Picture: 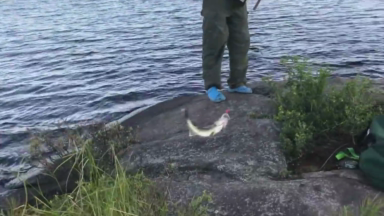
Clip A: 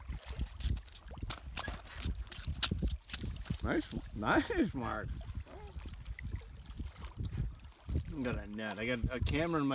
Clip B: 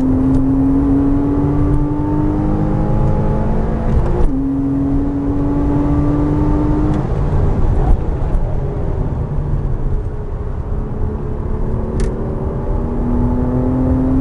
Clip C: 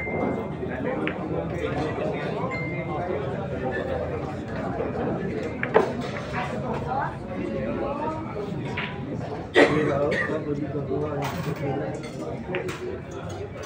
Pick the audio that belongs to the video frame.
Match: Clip A